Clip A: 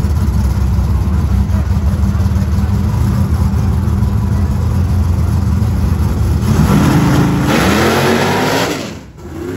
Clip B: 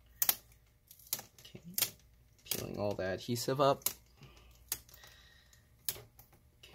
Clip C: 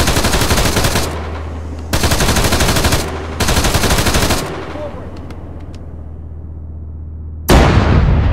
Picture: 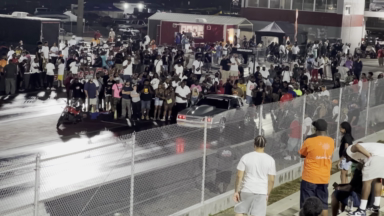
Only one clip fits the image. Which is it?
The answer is A